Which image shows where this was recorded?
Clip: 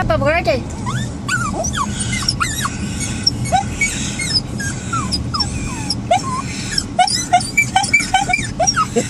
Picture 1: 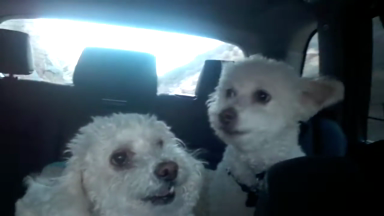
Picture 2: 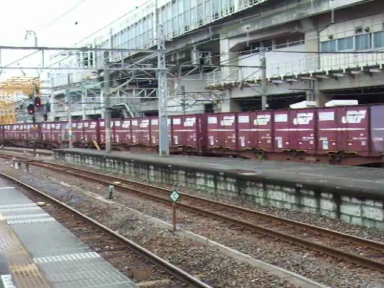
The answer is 1